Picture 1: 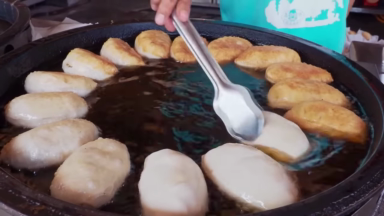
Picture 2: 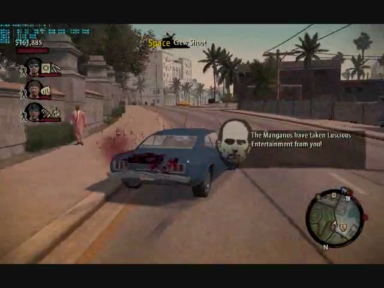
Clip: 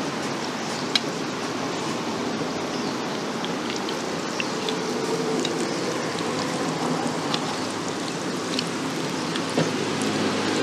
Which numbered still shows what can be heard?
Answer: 1